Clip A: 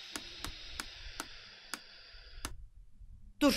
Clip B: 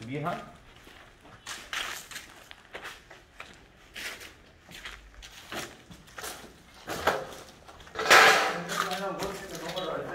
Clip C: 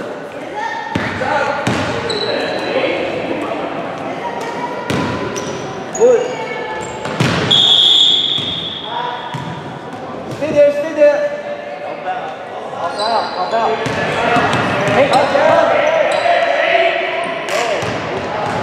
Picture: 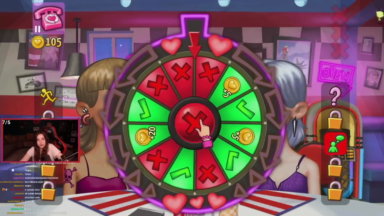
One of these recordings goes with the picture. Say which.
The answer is A